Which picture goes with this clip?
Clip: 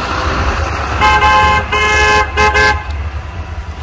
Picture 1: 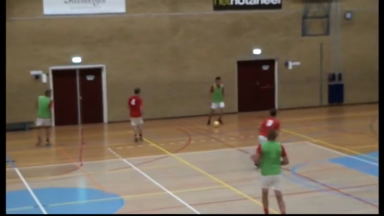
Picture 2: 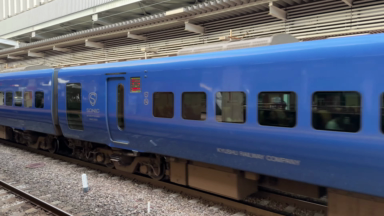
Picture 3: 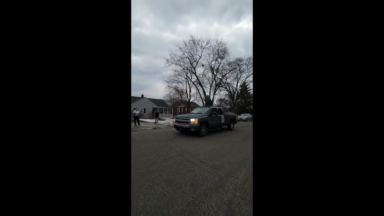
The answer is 3